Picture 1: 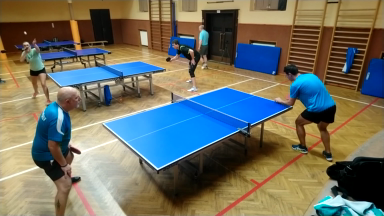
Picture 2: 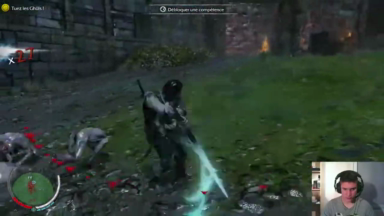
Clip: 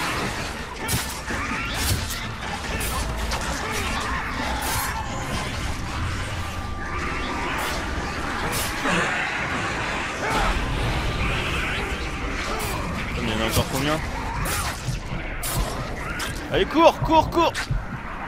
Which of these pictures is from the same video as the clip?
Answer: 2